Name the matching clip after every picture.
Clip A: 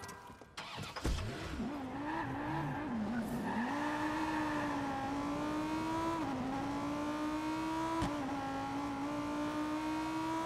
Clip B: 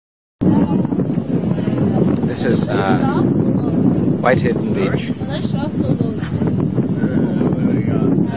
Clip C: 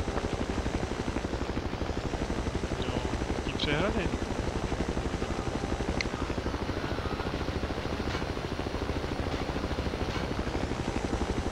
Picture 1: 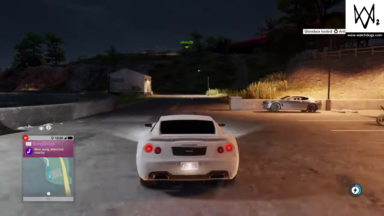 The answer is A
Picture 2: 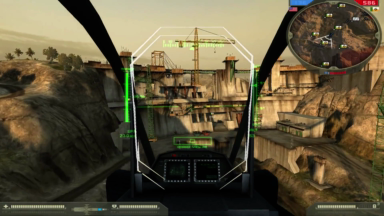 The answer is C